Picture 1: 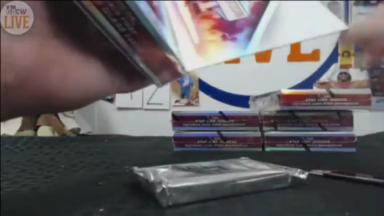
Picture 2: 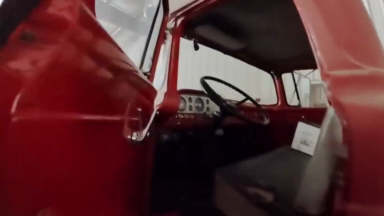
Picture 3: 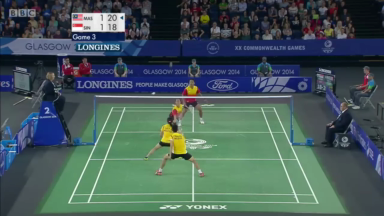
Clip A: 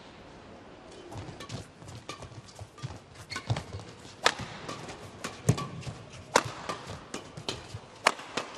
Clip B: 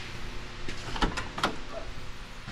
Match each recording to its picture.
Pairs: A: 3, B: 2